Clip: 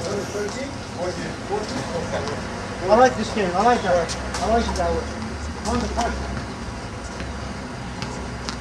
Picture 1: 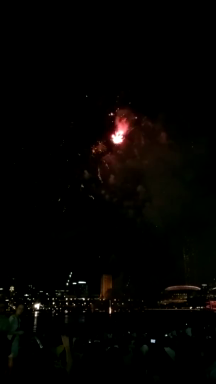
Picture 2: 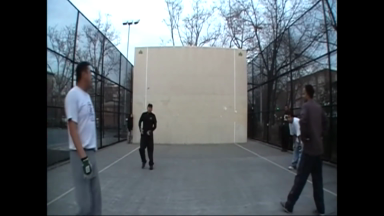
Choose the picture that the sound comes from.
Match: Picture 2